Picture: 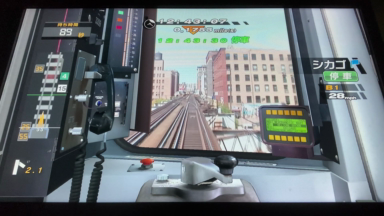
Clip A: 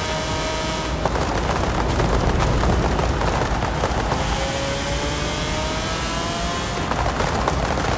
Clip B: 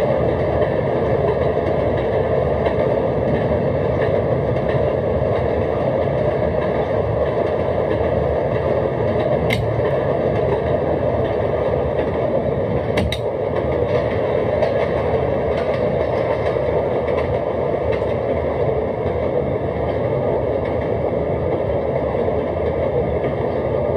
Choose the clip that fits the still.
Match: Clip B